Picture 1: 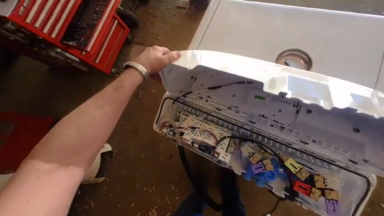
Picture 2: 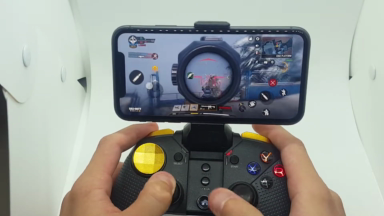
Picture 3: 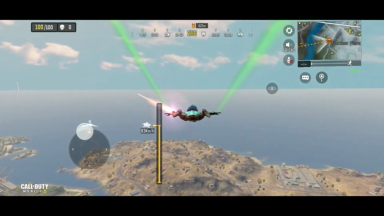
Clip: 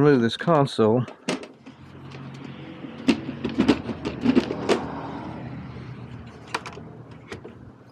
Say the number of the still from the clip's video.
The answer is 1